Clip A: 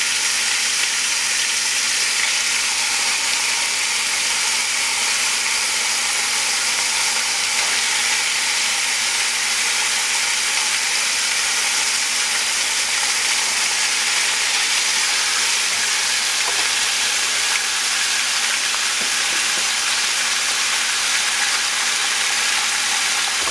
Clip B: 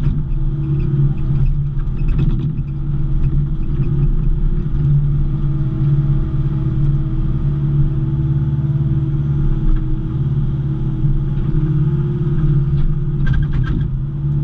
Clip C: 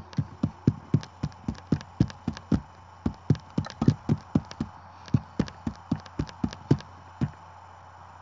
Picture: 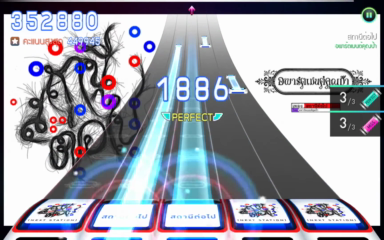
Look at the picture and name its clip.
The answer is C